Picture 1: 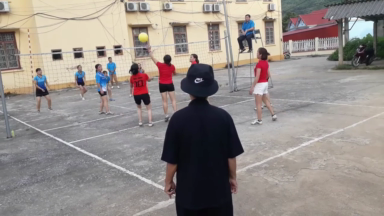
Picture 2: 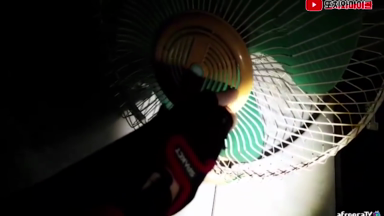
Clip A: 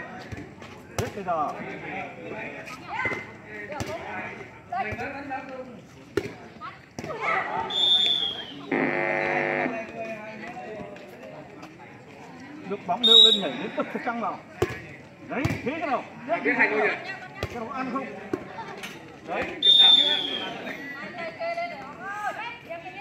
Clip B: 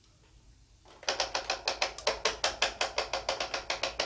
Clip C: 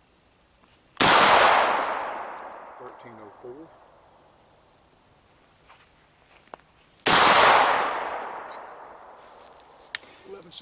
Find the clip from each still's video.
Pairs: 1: A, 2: B